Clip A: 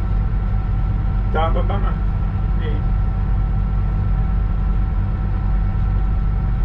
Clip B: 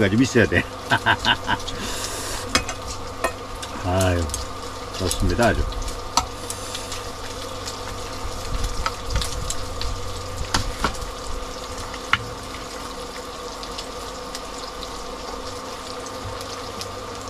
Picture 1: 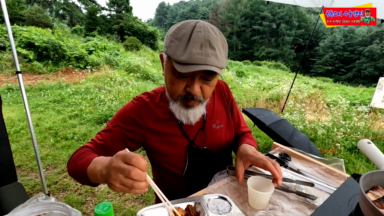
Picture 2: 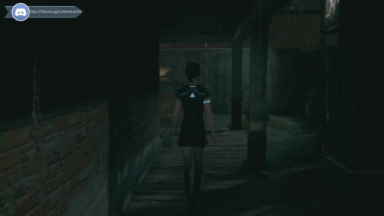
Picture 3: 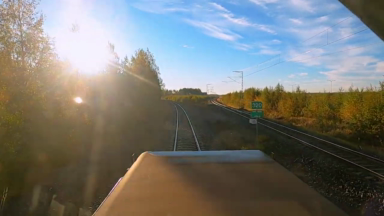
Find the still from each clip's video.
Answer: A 3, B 1